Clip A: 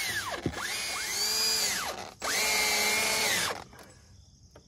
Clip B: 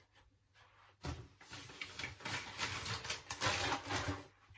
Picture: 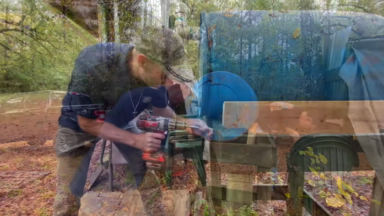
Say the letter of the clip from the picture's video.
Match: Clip A